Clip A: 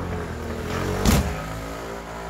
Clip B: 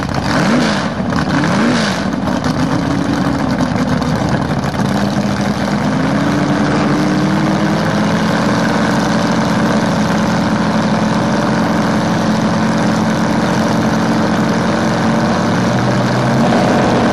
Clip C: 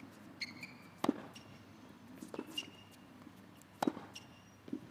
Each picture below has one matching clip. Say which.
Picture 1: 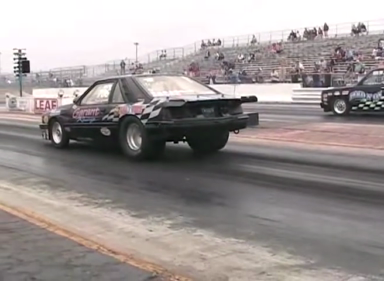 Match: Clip B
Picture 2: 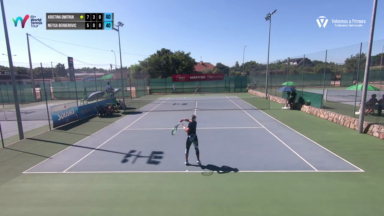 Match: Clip C